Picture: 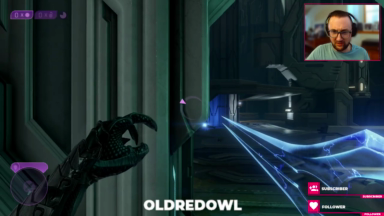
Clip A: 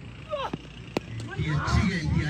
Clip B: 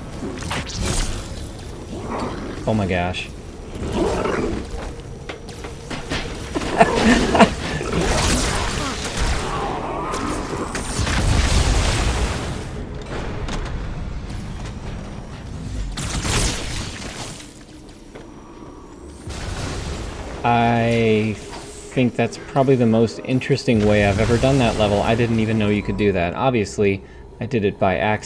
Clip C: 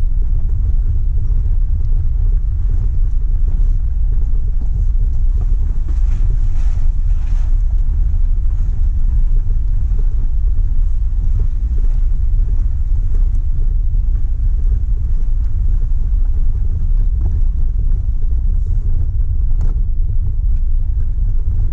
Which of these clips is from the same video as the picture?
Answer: B